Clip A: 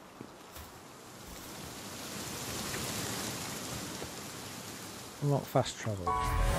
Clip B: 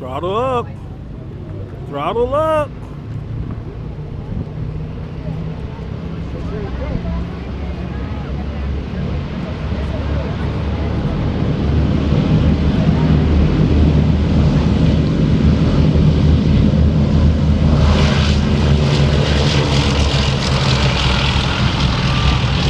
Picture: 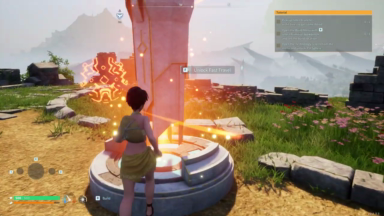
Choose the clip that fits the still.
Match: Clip A